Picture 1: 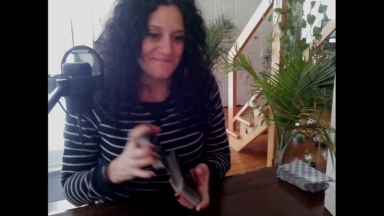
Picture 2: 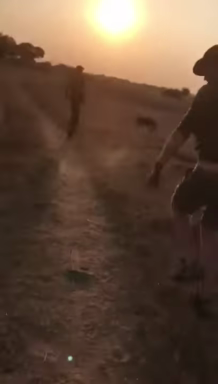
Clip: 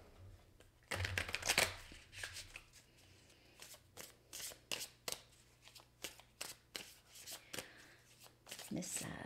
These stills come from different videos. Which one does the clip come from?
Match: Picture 1